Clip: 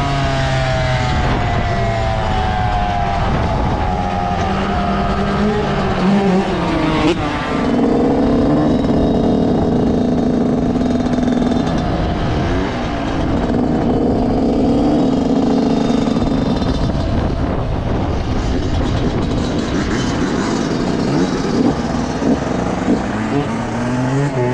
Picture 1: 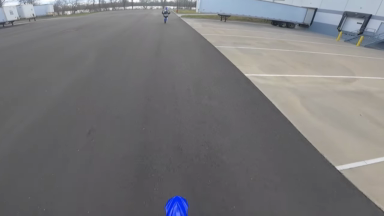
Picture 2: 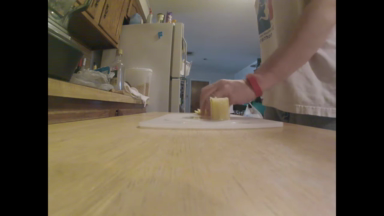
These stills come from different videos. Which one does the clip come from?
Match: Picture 1